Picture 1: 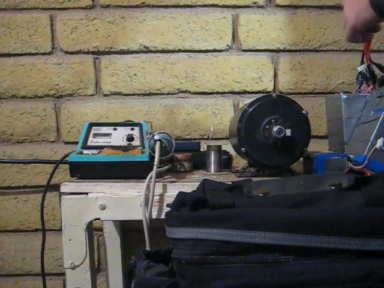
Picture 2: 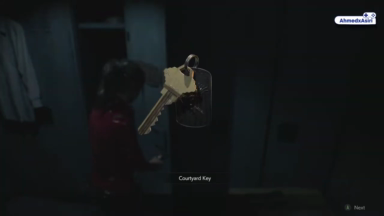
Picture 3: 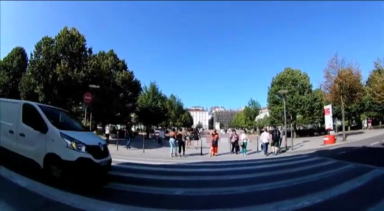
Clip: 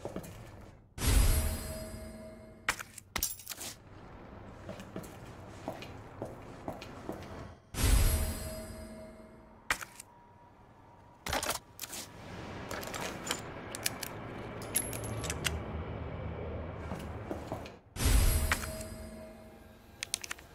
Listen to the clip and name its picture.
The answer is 2